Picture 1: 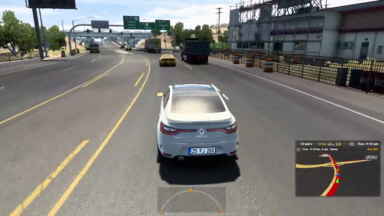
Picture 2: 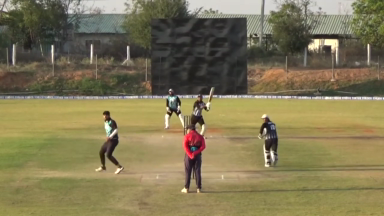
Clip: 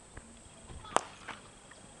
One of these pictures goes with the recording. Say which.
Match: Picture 2